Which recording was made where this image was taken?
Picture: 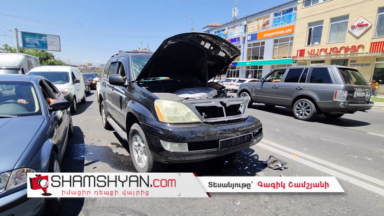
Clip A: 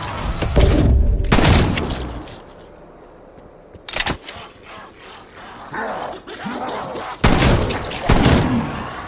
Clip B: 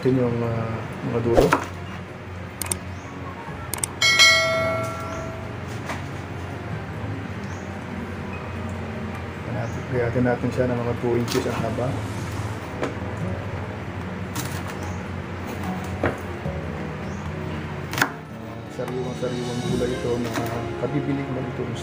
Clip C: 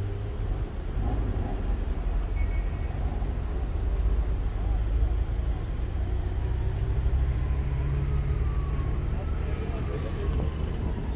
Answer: C